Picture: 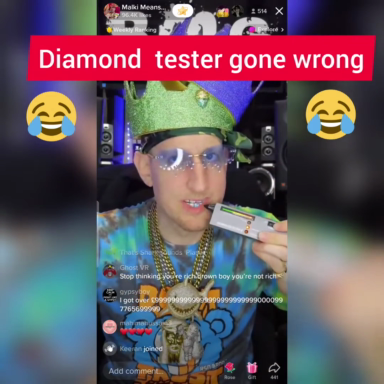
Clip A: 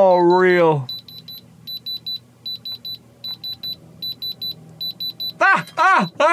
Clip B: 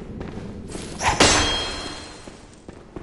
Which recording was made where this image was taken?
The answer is A